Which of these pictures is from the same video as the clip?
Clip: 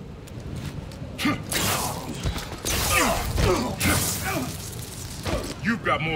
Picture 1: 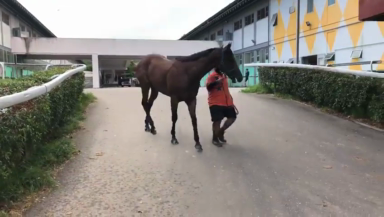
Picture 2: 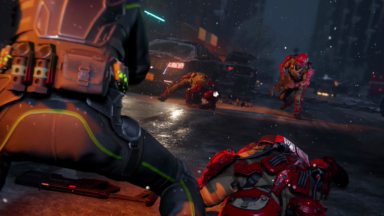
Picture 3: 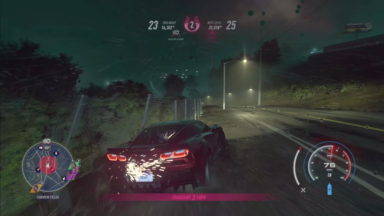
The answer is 2